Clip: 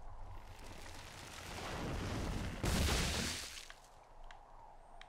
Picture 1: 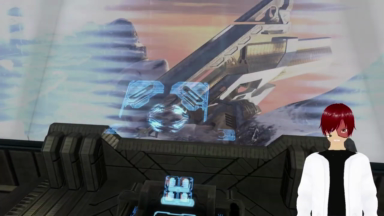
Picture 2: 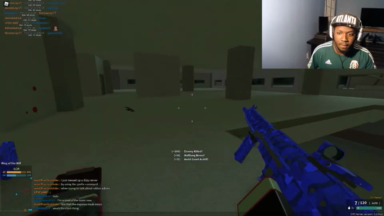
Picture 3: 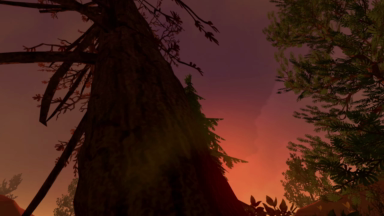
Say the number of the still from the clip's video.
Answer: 3